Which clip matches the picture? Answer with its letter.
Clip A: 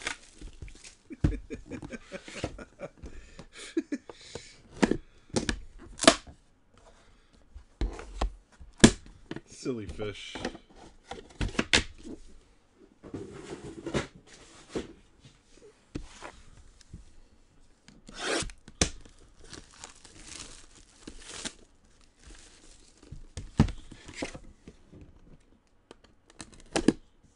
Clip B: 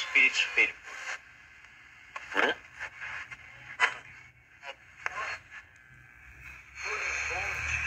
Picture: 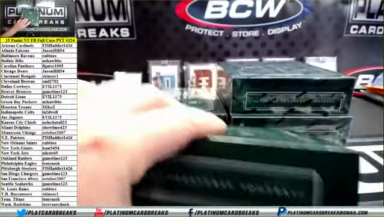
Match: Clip A